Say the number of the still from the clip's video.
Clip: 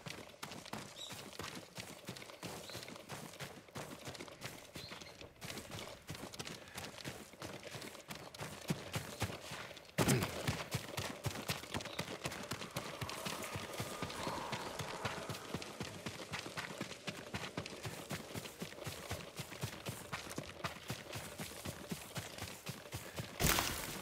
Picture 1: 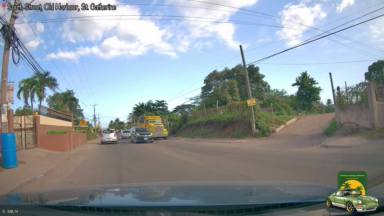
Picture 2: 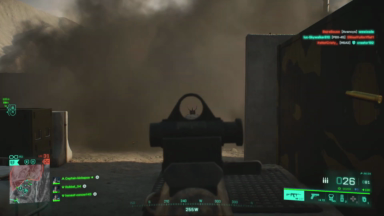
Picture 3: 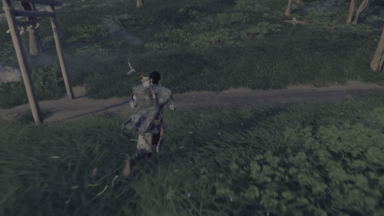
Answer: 3